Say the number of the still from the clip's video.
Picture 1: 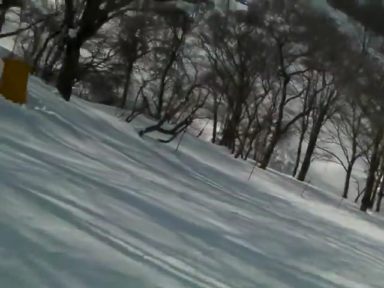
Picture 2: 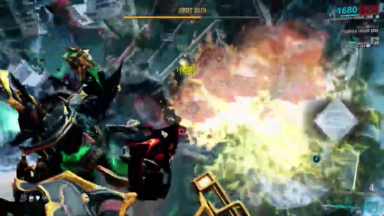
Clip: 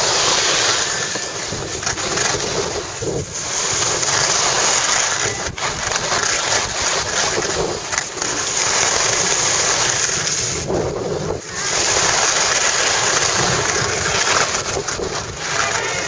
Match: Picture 1